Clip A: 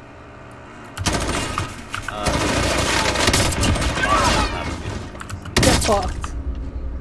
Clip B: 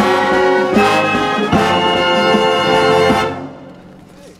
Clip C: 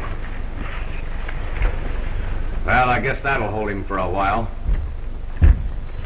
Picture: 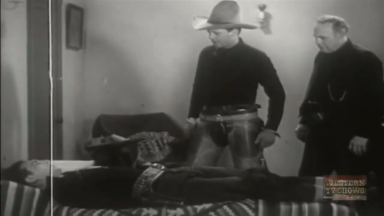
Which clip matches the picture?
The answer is C